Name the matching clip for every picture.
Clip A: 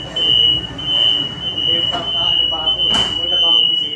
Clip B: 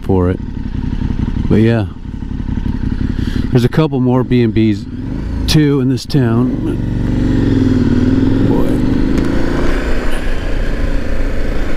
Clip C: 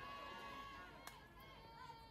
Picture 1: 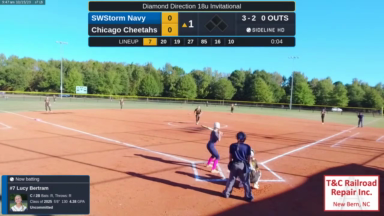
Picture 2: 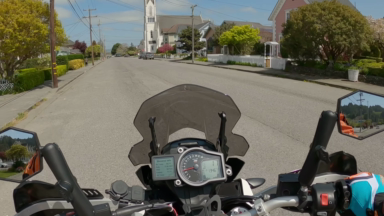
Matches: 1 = C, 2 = B